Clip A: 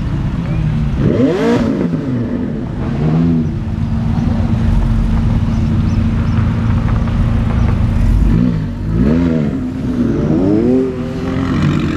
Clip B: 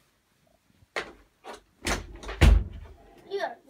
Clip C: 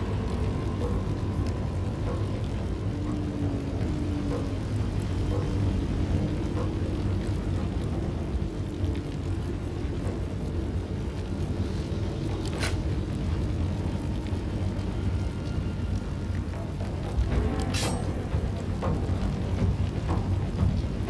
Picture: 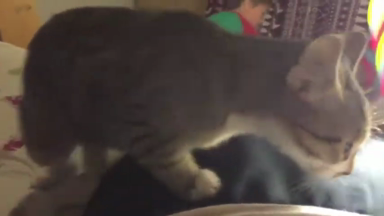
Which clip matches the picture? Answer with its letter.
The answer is B